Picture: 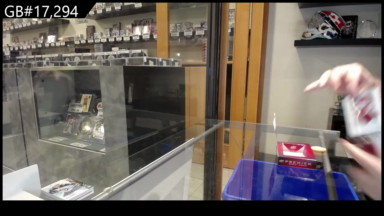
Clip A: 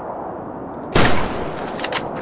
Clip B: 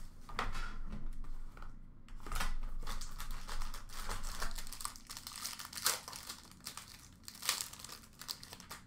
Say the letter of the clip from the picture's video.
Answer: B